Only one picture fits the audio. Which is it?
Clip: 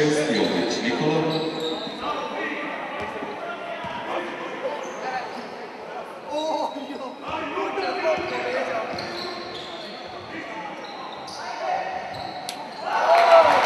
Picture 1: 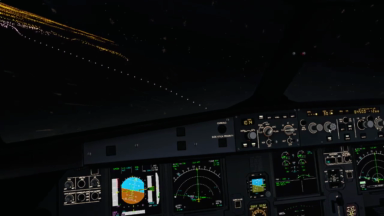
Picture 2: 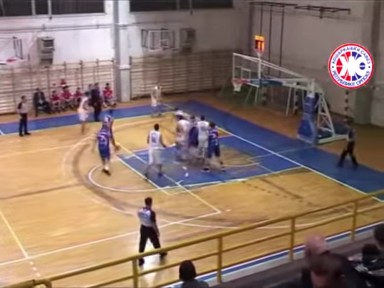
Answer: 2